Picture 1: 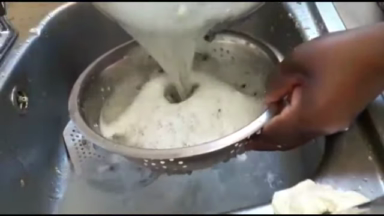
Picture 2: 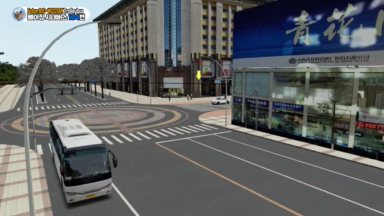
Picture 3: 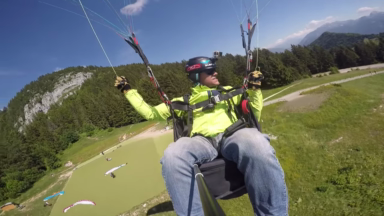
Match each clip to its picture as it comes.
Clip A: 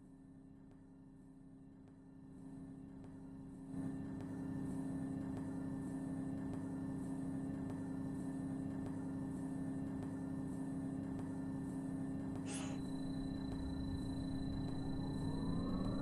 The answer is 2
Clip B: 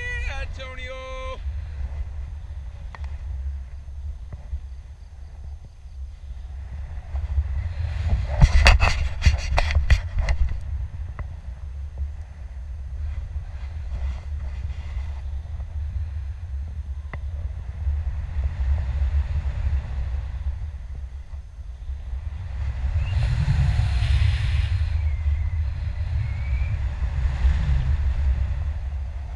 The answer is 3